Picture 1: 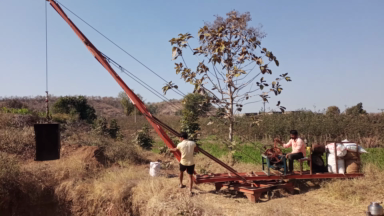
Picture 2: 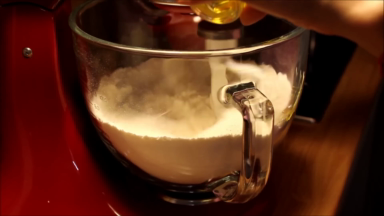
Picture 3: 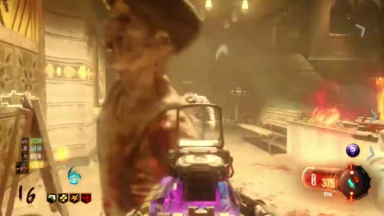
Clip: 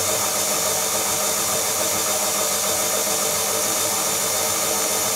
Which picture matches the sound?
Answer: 2